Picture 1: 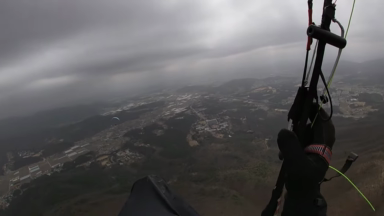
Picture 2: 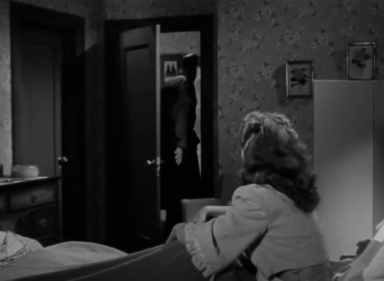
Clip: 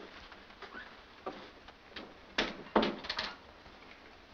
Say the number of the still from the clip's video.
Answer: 2